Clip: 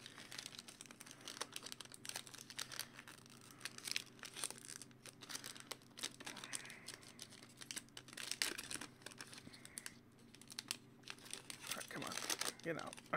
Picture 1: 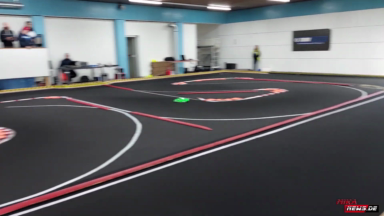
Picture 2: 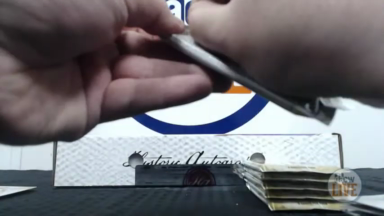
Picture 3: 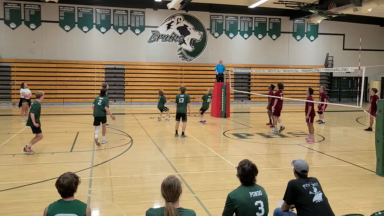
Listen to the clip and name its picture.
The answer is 2